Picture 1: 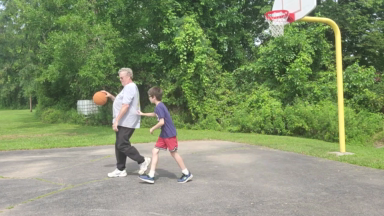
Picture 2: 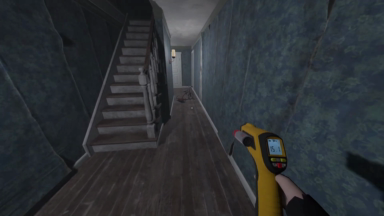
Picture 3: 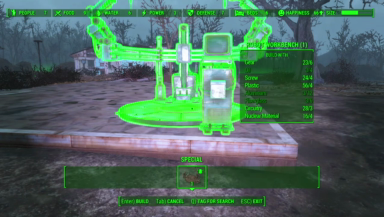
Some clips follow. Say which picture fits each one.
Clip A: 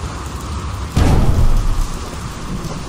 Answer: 3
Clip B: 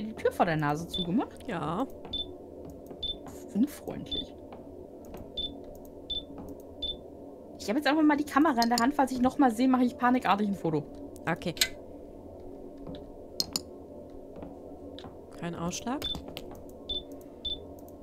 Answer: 2